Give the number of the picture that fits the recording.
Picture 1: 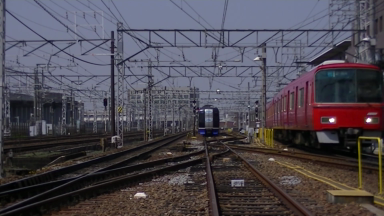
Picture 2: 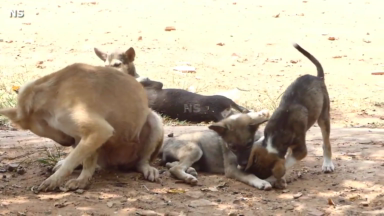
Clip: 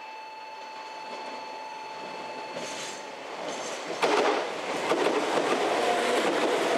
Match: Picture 1